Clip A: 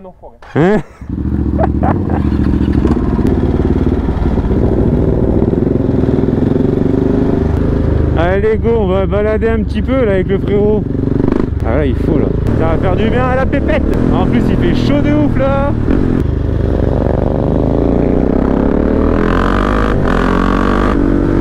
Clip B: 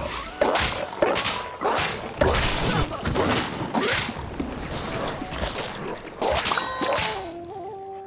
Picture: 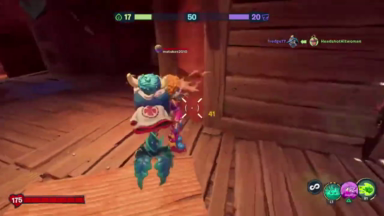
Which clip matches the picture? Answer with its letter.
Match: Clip B